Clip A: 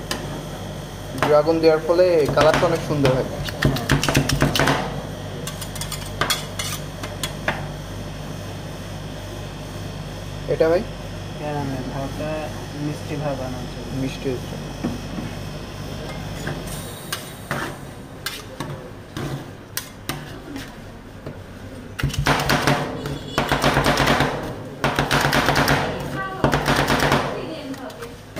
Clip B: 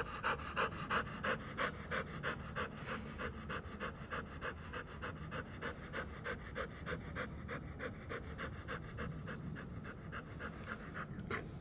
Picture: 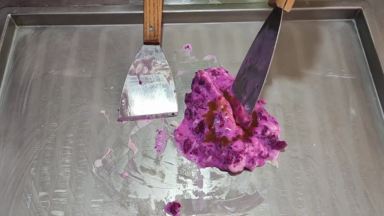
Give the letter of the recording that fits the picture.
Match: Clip A